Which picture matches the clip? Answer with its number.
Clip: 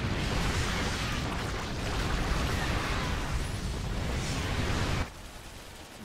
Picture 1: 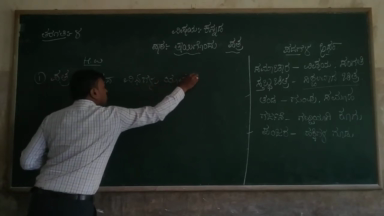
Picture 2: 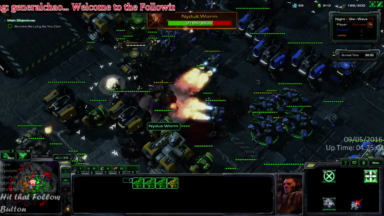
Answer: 2